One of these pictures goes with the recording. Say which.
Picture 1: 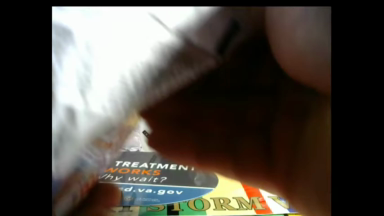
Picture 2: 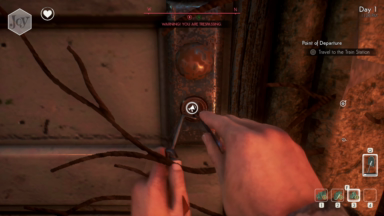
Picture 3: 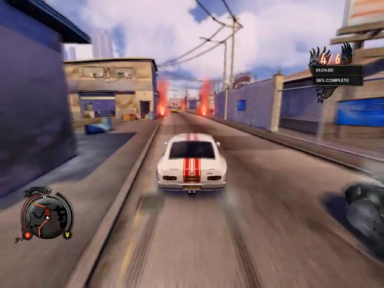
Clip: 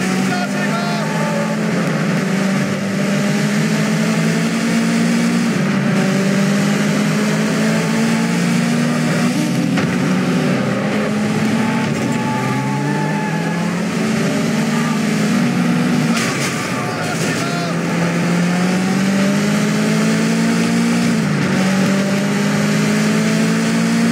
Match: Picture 3